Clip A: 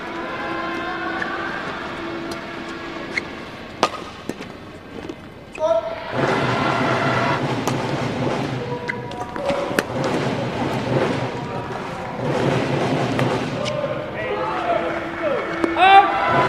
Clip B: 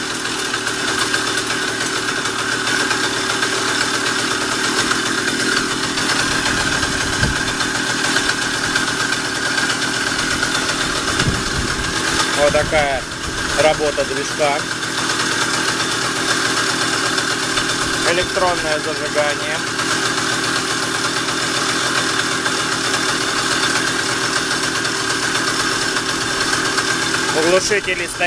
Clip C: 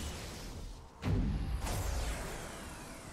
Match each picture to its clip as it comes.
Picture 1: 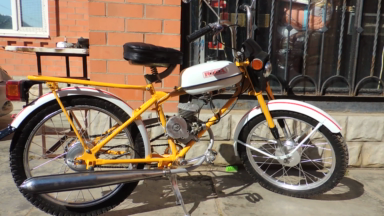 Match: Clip B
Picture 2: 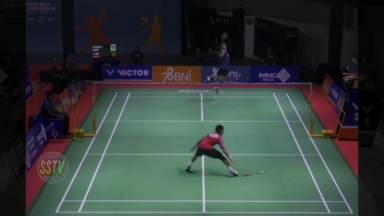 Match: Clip A